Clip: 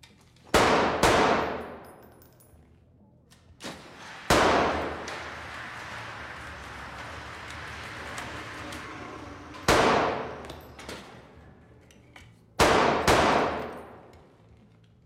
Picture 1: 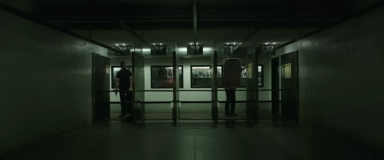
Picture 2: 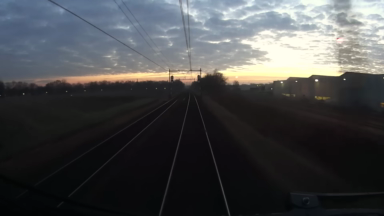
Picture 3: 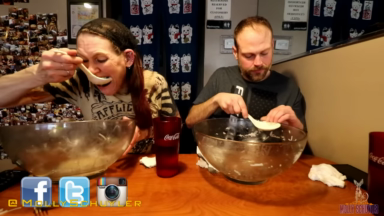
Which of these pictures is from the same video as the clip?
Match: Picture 1